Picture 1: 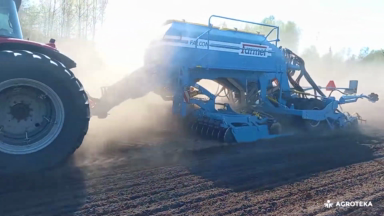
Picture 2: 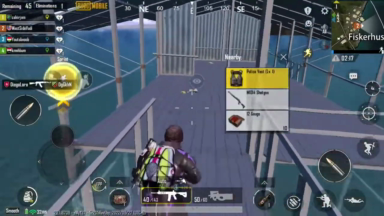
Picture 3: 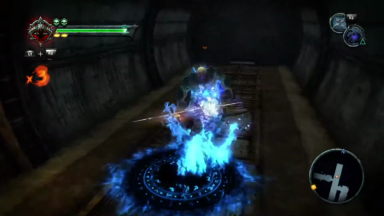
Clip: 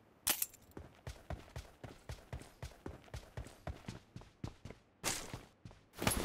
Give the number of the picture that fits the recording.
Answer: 2